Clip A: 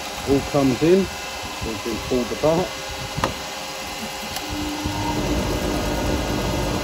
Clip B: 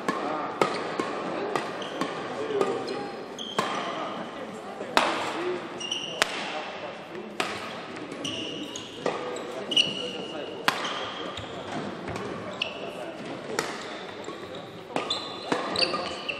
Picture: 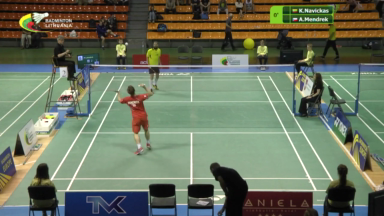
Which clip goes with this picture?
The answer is B